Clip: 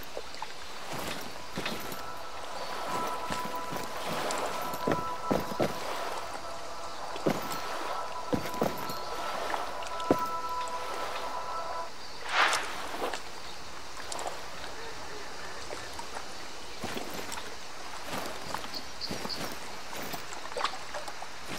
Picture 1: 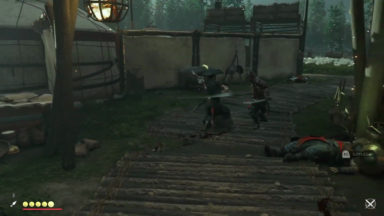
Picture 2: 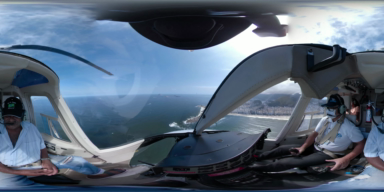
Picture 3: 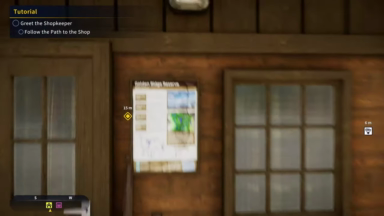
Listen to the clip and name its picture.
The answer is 3